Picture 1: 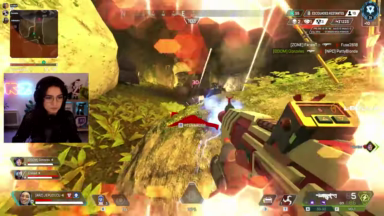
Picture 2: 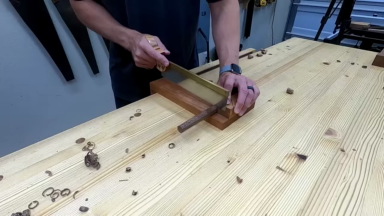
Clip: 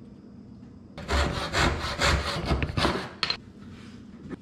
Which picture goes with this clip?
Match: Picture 2